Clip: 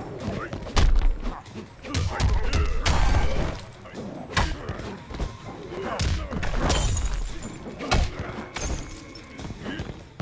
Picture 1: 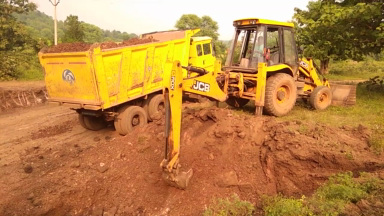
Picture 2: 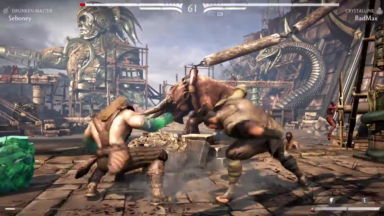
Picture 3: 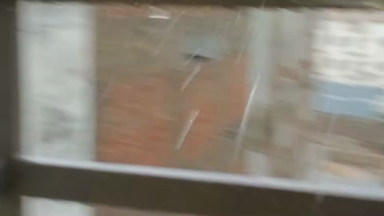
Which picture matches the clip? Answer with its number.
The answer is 2